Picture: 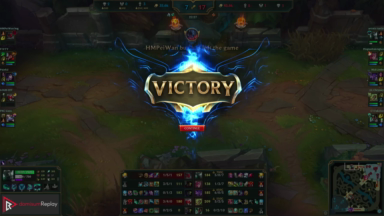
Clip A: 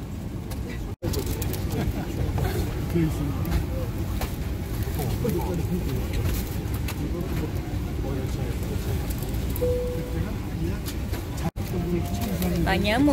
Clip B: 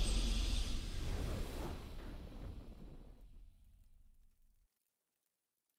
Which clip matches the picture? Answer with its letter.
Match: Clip B